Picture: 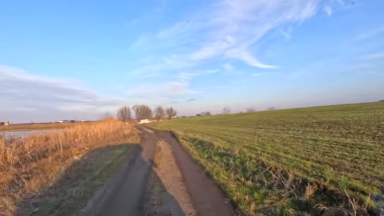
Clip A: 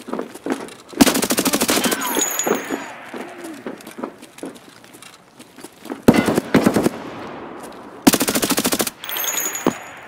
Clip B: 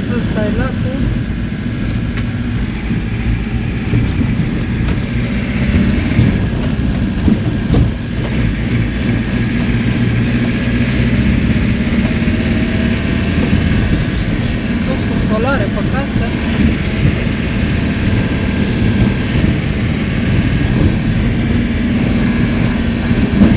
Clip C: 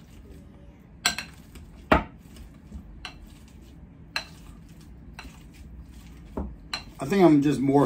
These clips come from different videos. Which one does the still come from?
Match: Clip B